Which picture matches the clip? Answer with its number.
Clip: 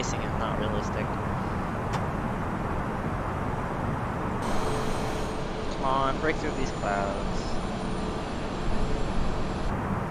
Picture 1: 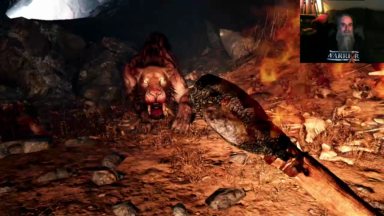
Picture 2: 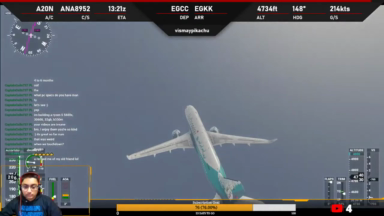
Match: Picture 2